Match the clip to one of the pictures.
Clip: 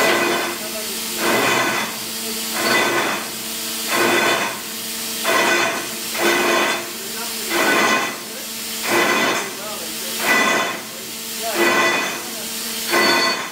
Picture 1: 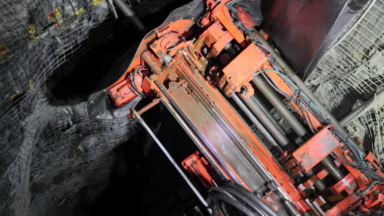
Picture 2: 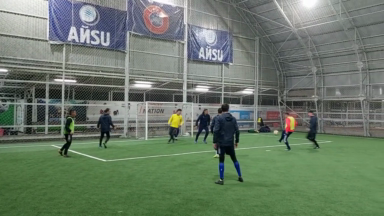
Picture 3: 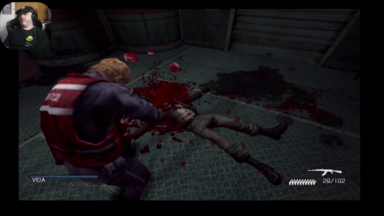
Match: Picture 1